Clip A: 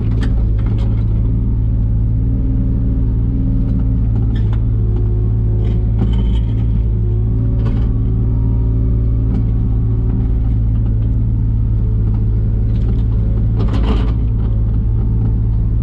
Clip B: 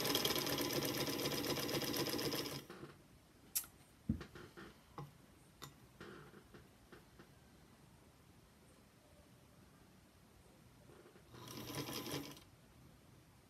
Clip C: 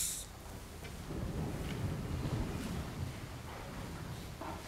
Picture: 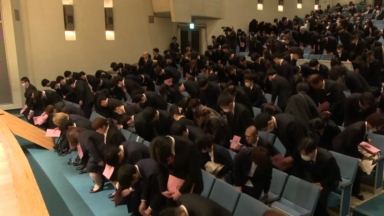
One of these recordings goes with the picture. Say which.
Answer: C